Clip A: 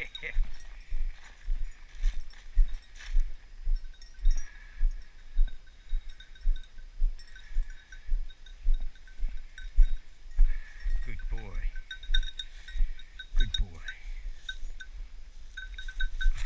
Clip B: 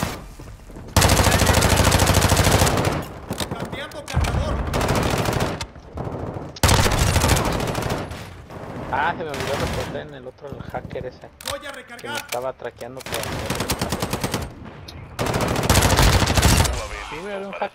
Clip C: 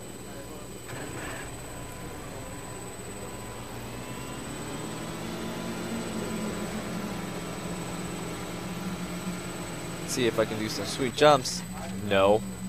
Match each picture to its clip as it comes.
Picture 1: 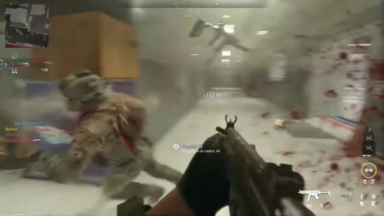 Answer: B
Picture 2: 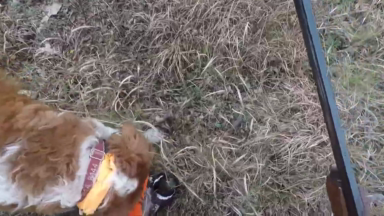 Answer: A